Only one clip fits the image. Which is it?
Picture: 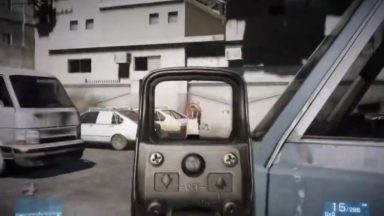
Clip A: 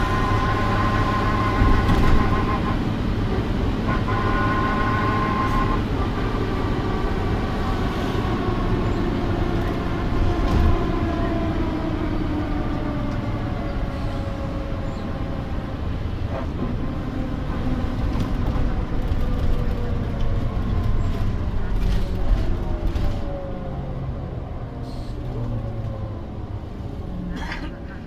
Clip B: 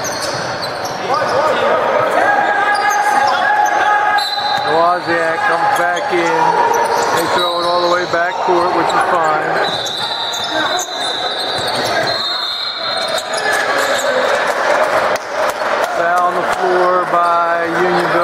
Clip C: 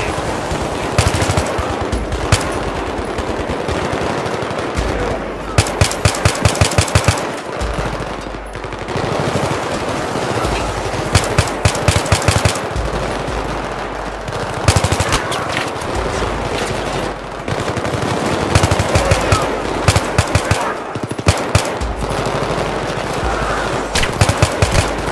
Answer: C